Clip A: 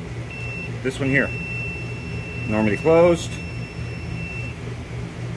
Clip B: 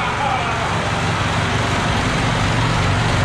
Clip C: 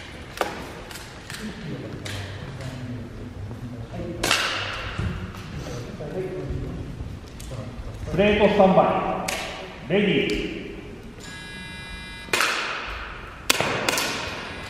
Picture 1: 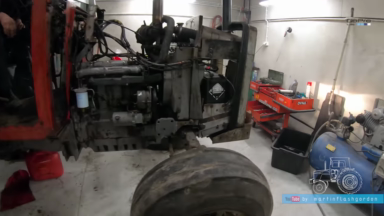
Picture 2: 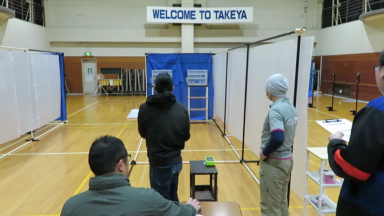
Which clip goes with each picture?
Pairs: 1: B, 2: C